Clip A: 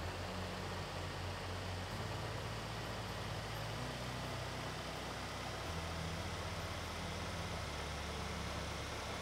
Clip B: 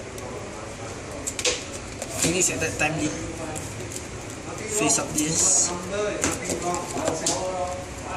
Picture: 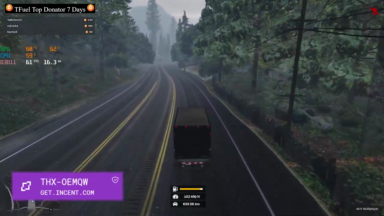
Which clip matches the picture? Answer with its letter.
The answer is A